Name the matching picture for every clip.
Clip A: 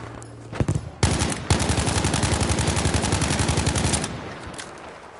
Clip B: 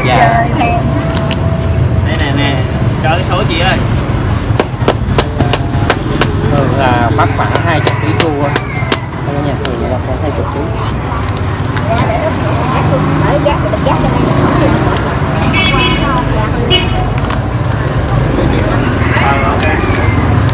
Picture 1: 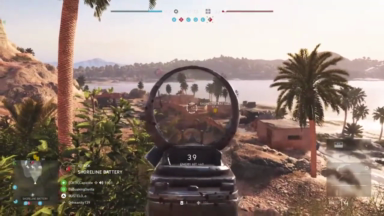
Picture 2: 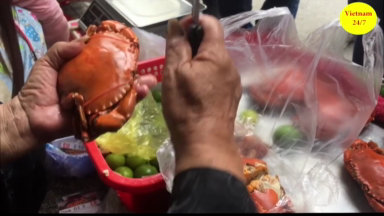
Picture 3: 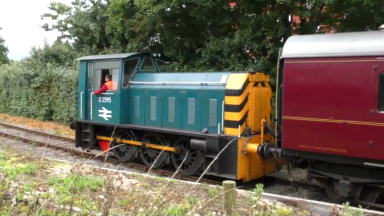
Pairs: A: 1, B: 2